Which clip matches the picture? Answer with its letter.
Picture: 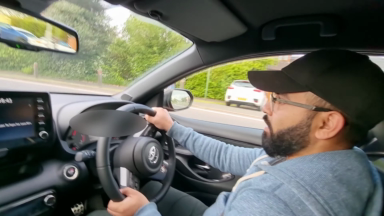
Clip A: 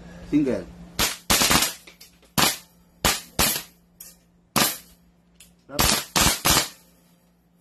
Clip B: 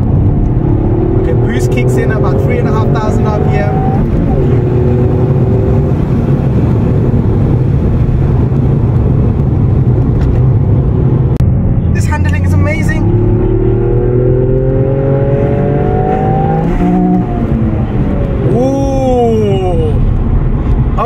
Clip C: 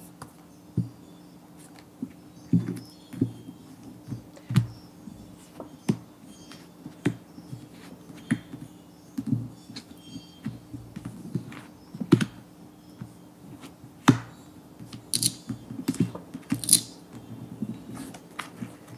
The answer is B